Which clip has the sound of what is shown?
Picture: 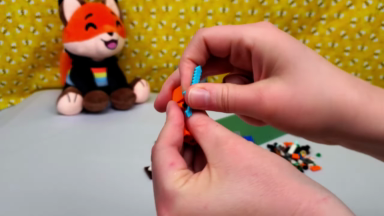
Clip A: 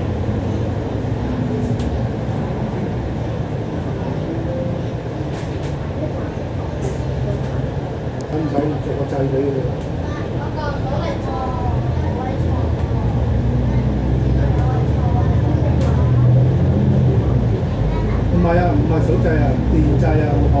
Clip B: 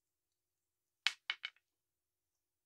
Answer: B